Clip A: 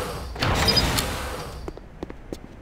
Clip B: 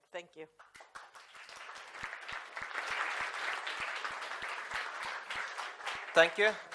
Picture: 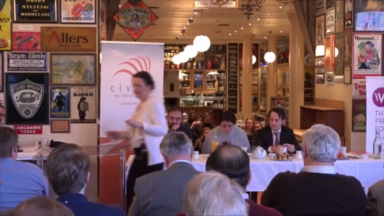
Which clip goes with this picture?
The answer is B